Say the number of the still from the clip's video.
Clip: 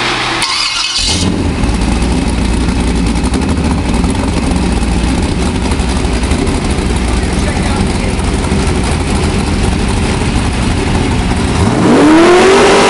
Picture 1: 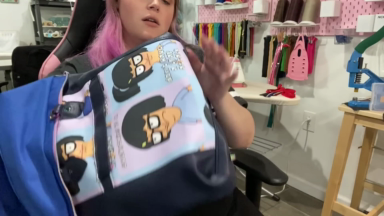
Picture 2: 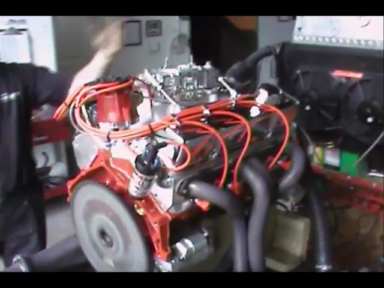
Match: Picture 2